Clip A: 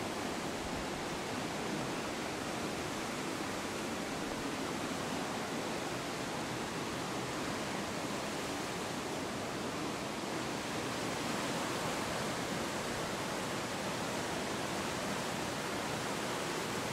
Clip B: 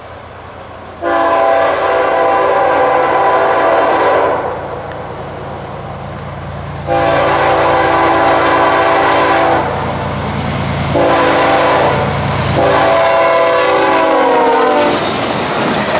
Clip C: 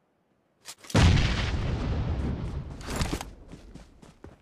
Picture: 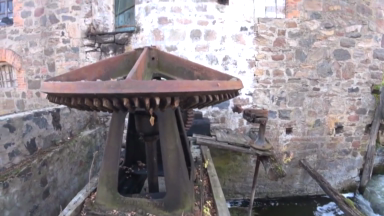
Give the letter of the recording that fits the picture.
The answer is A